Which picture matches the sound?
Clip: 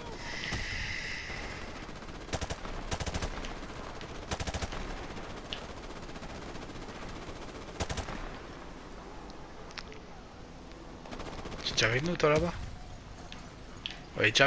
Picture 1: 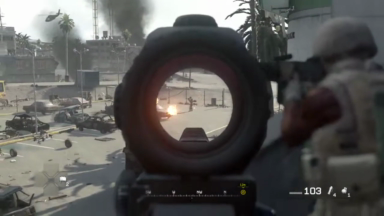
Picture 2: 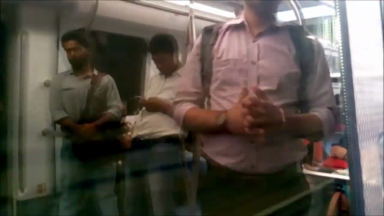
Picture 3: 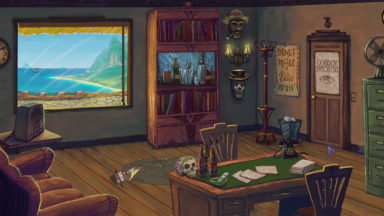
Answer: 1